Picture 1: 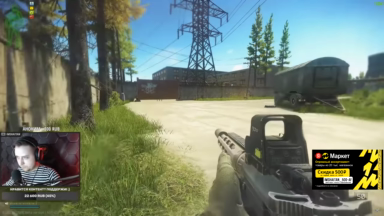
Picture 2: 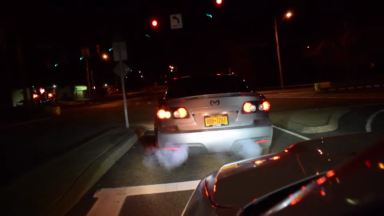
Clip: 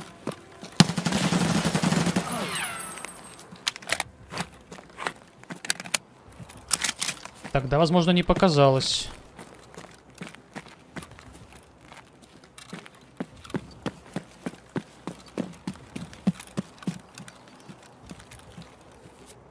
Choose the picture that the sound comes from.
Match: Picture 1